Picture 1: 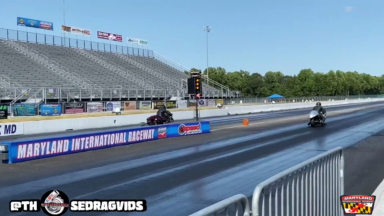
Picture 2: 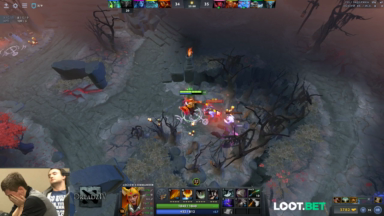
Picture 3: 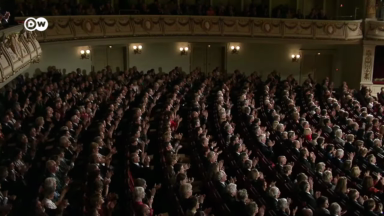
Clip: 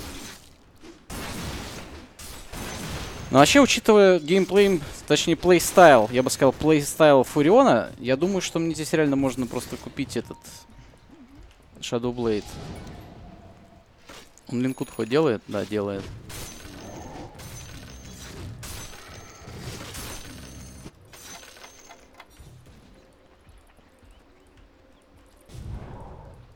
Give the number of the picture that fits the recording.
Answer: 2